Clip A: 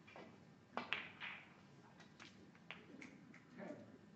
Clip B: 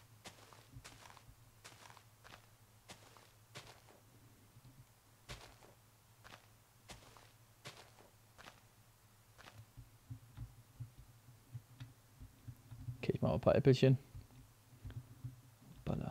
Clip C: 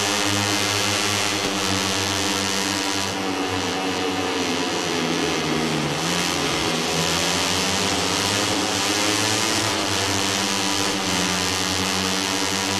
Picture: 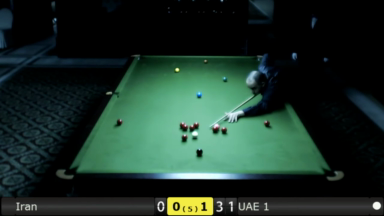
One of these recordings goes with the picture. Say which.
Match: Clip A